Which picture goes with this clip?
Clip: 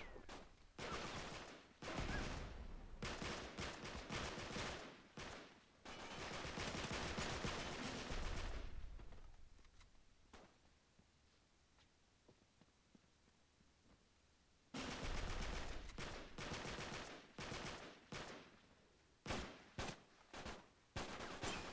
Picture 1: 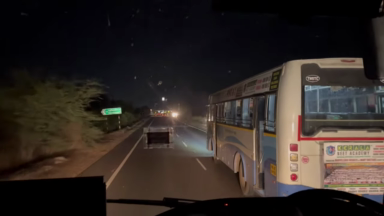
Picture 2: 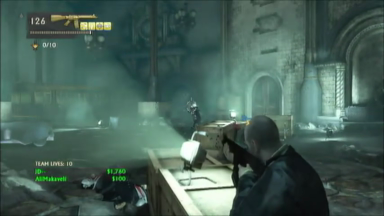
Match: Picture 2